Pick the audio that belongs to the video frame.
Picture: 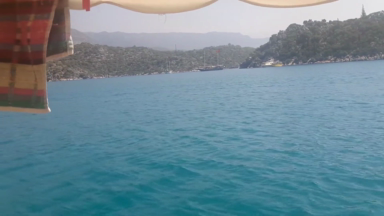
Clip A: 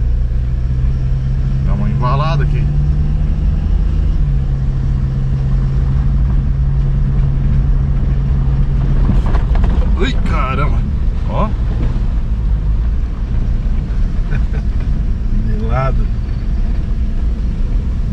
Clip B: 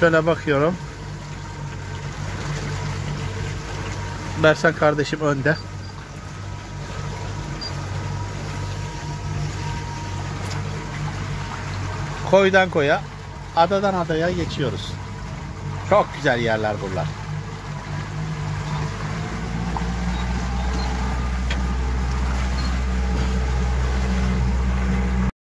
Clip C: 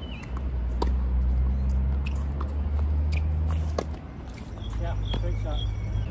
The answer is B